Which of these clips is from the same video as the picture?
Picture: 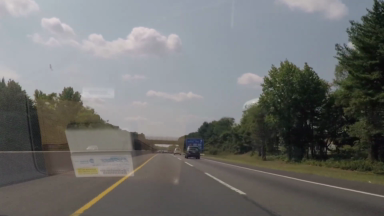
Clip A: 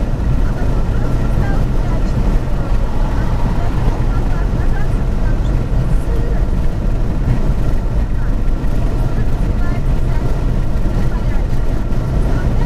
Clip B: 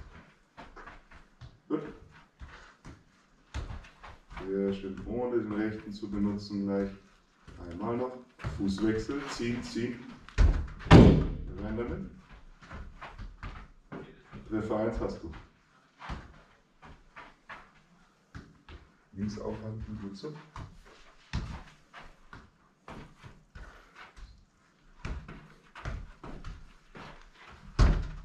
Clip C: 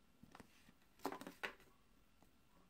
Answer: A